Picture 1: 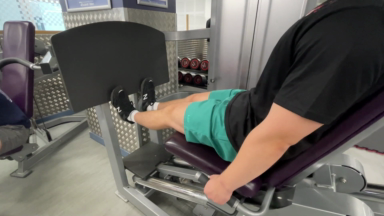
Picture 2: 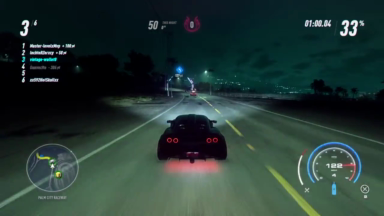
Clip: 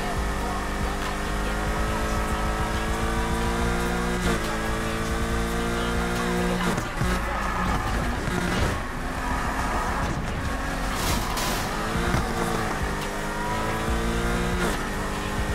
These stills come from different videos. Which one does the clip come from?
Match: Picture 2